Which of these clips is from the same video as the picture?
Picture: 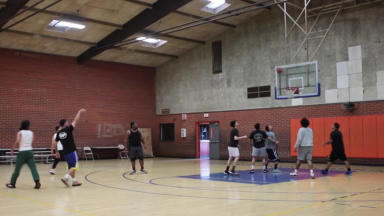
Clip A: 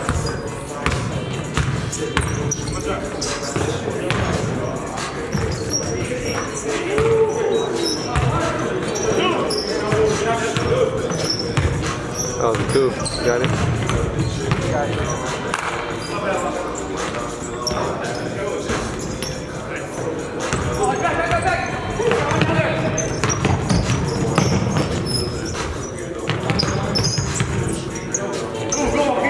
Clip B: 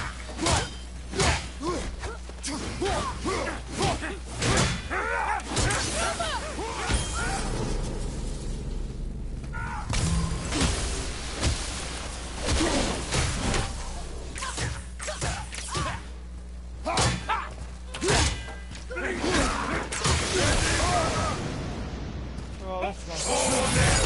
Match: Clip A